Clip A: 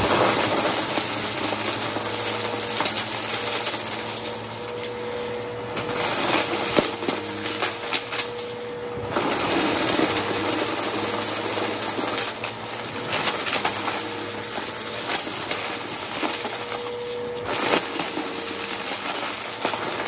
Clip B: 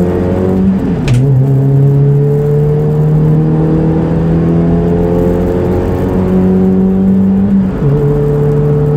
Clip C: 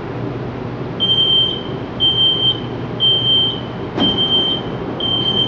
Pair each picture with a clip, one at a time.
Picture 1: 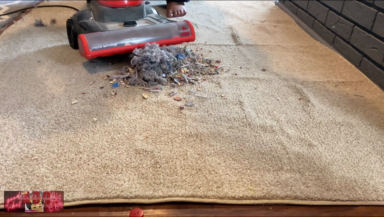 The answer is A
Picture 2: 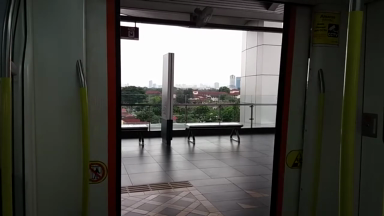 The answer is C